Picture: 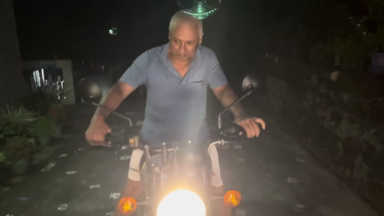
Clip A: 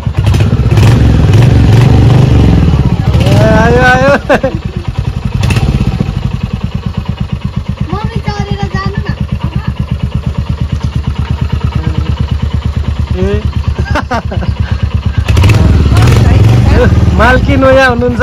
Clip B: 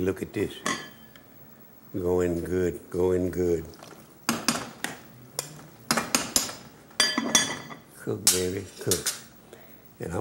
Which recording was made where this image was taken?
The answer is A